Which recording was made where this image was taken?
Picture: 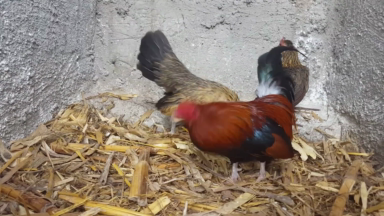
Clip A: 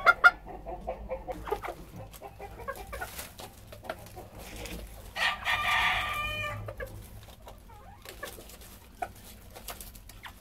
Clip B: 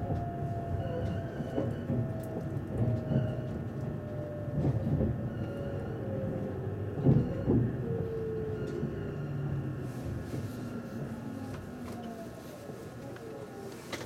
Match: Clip A